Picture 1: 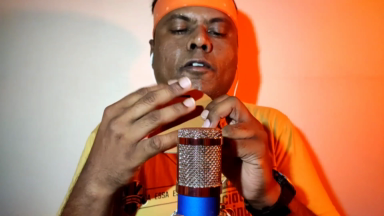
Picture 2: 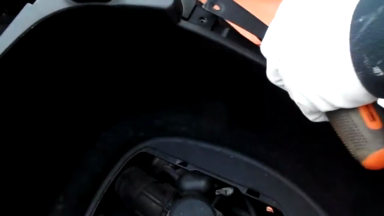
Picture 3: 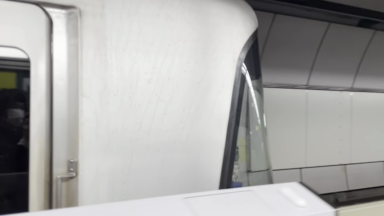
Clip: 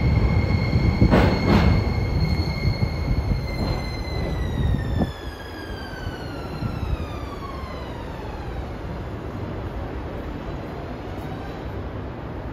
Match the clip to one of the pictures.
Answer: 3